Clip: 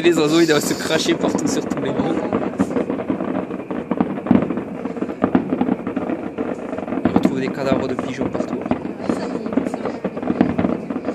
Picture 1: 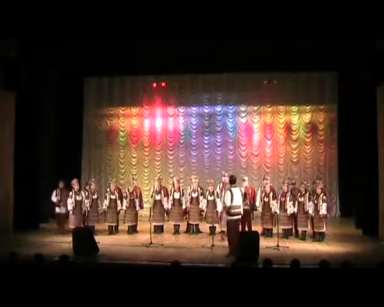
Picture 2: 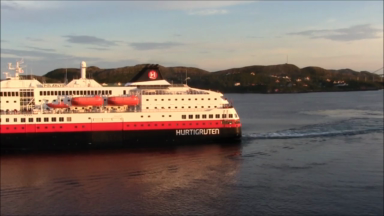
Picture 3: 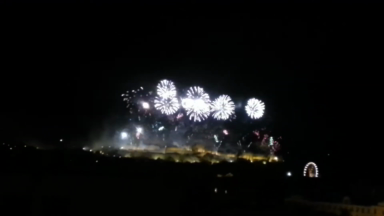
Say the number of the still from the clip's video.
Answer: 3